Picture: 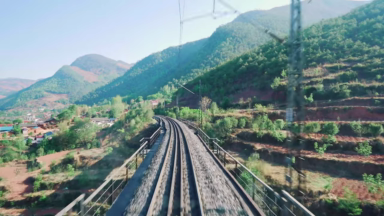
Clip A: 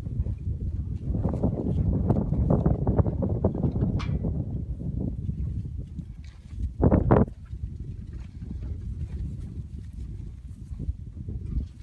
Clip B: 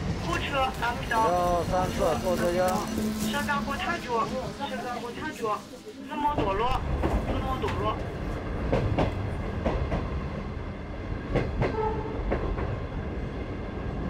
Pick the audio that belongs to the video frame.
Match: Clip B